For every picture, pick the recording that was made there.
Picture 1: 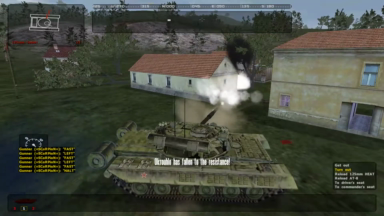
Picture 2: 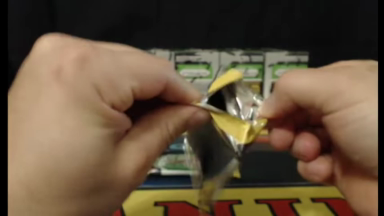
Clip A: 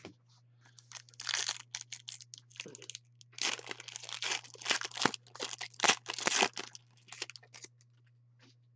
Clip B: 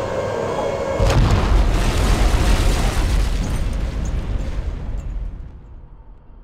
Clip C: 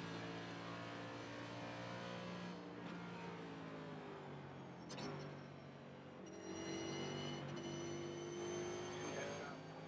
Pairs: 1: B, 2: A